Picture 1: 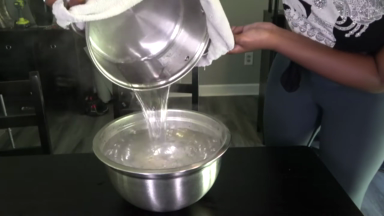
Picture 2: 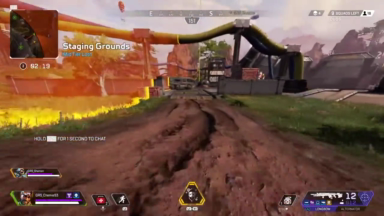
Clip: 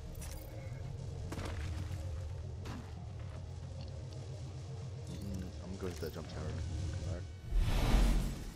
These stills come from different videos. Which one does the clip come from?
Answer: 2